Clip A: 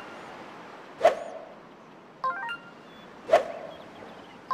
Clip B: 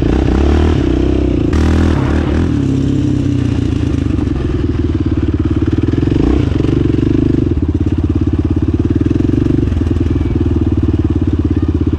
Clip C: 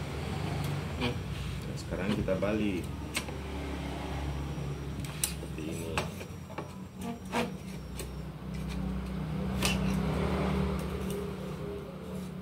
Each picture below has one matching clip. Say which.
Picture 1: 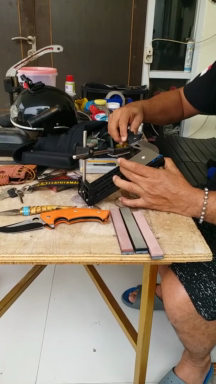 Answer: C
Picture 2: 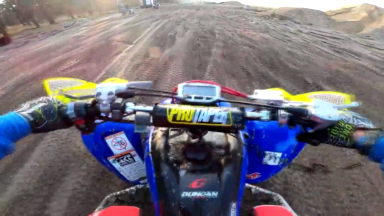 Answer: B